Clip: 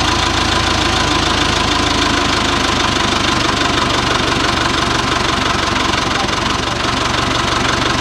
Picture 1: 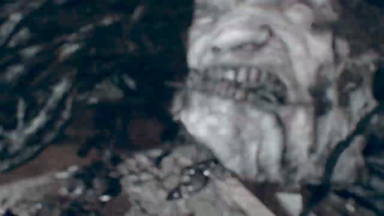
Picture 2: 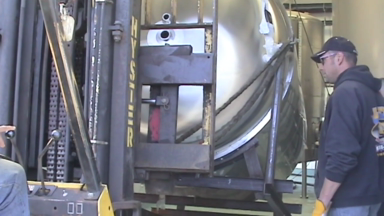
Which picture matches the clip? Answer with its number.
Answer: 2